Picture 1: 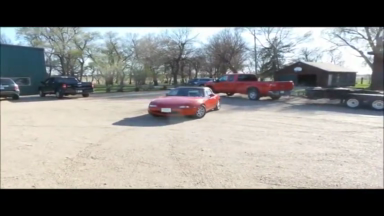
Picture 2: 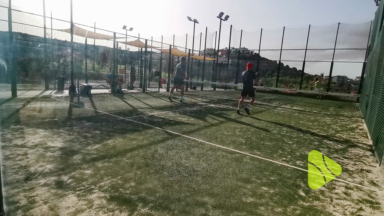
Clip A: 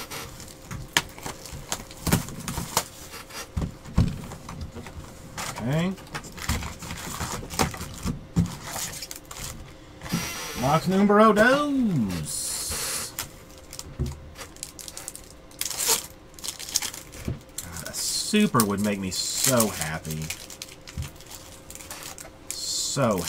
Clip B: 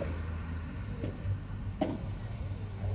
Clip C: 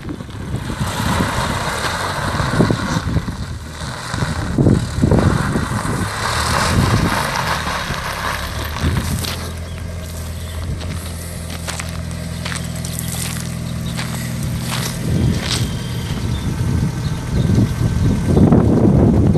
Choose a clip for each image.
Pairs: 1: C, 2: B